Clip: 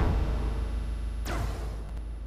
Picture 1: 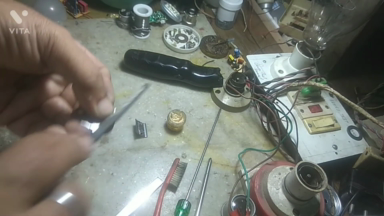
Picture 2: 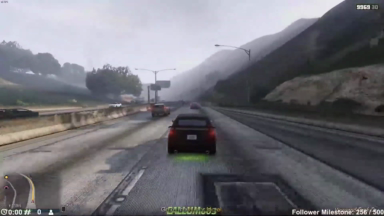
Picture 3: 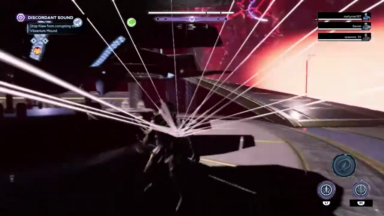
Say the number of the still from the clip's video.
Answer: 3